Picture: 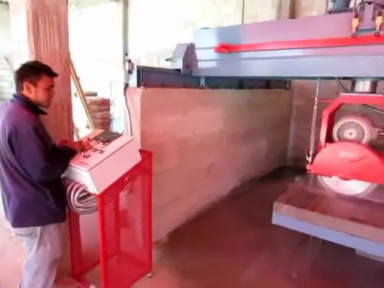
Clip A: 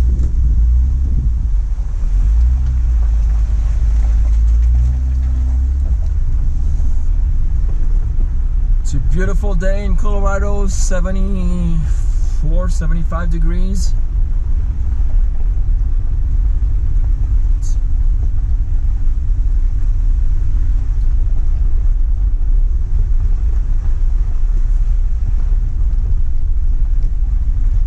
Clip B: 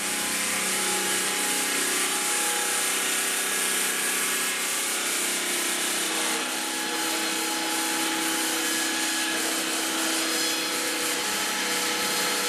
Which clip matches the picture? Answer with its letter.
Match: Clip B